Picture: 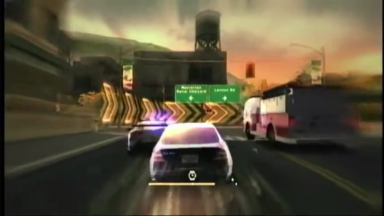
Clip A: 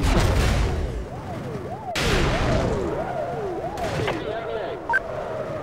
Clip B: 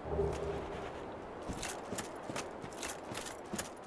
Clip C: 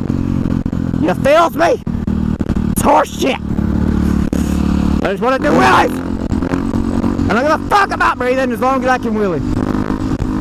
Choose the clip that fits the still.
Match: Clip A